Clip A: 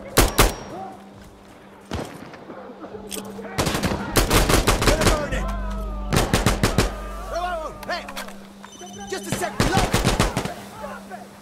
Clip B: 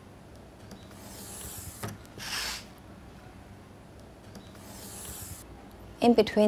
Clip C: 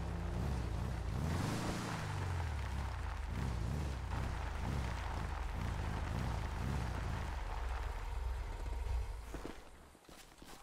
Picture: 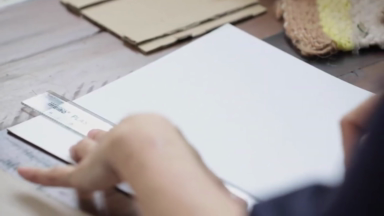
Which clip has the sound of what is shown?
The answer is B